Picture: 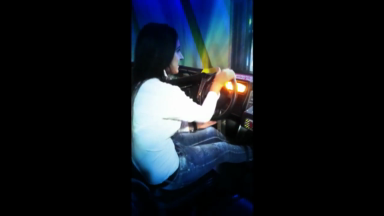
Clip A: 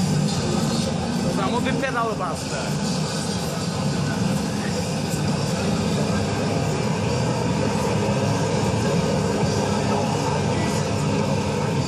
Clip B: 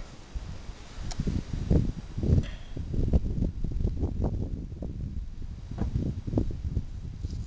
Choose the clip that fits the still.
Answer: A